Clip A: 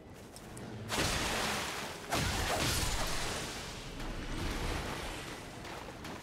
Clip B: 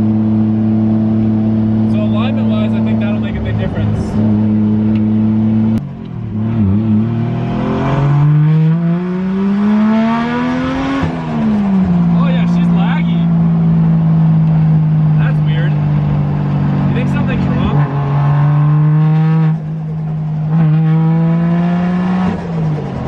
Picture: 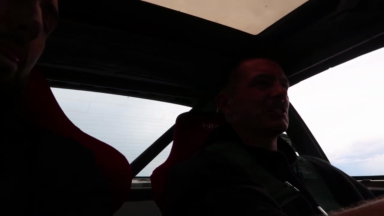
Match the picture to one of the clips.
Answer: B